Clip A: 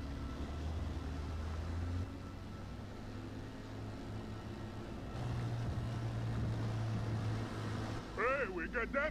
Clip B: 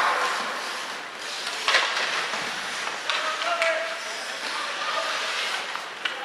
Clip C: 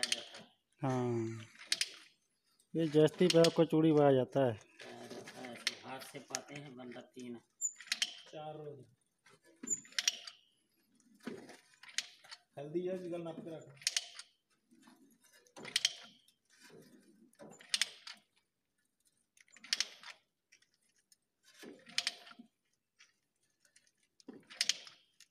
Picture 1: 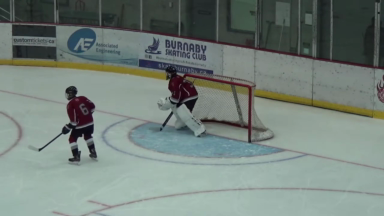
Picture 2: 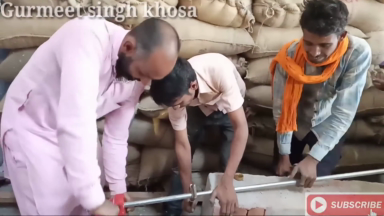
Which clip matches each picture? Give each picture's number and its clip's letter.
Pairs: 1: B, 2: C